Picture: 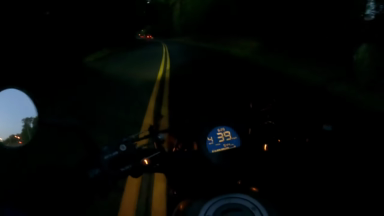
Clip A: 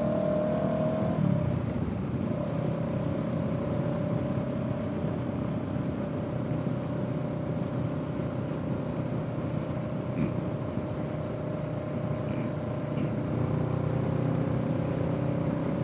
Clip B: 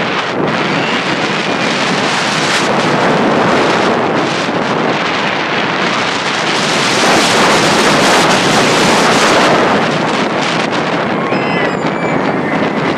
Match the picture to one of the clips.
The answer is A